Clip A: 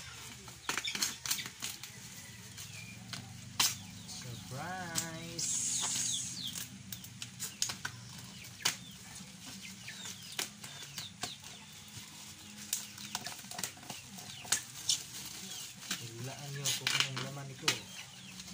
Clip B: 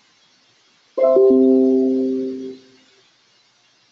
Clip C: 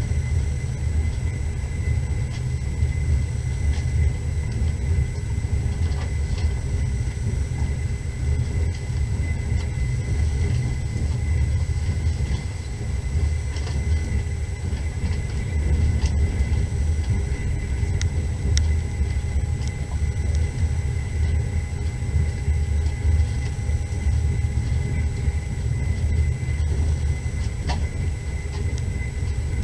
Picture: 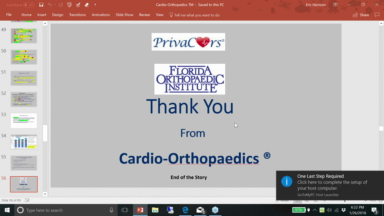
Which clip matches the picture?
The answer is B